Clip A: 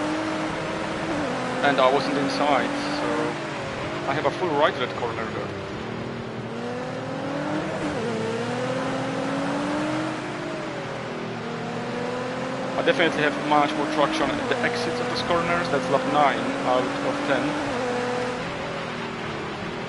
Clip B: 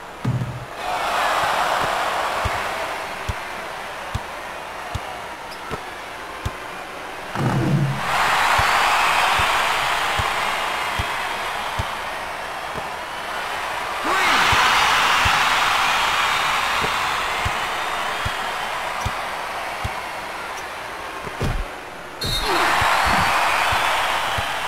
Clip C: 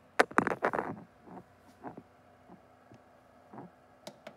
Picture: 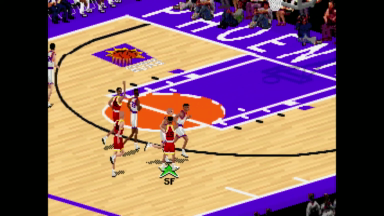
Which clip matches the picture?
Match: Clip B